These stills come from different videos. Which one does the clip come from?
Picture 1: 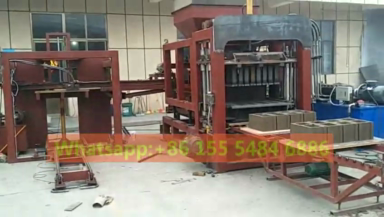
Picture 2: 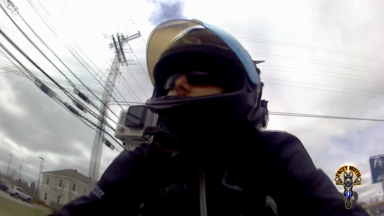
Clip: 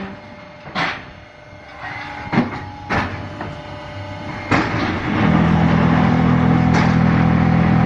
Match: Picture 1